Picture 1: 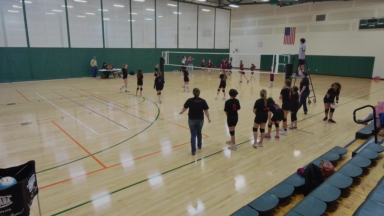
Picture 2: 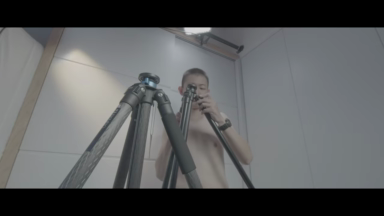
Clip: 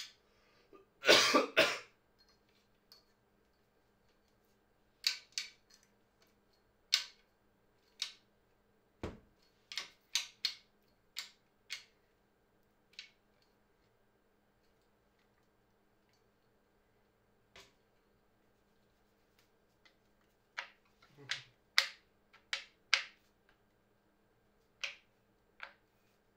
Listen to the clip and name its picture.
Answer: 2